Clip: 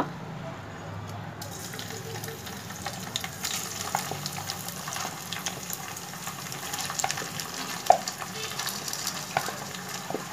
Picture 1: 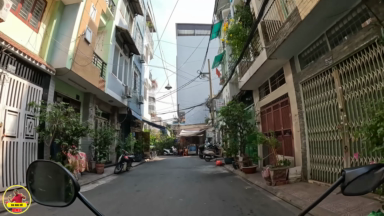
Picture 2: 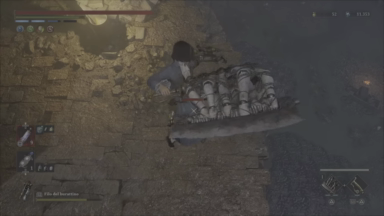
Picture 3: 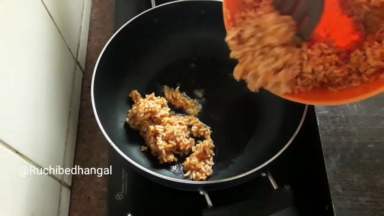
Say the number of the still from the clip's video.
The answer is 3